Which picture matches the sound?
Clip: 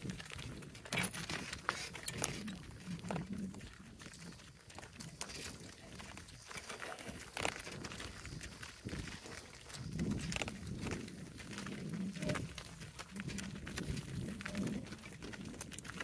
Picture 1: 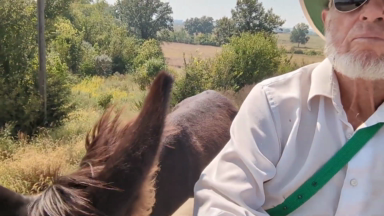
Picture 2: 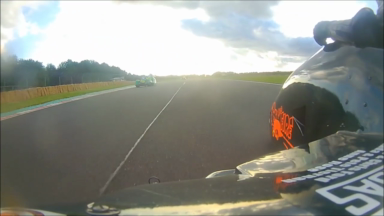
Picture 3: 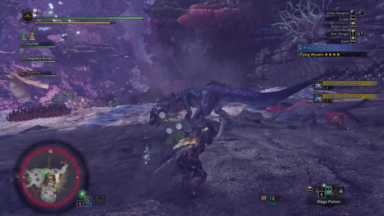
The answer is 1